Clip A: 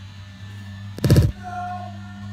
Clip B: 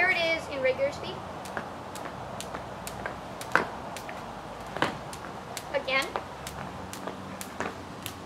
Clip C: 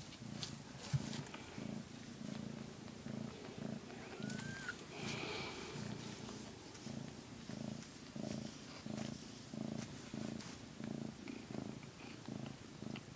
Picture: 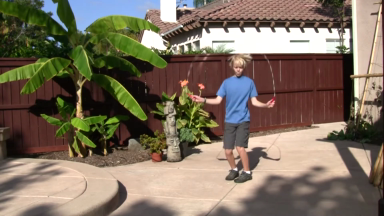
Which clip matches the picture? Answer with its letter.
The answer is B